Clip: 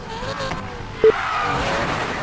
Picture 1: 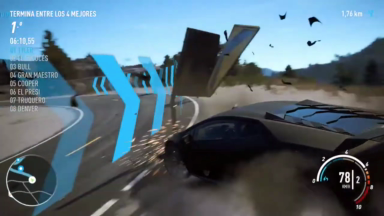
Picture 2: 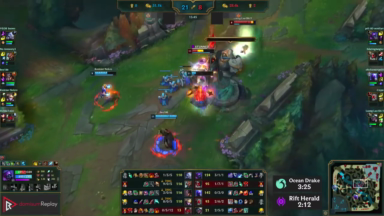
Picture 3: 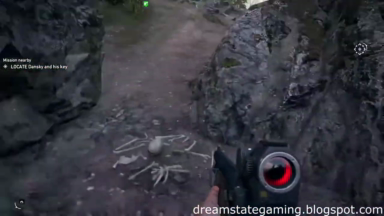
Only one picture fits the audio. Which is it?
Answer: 1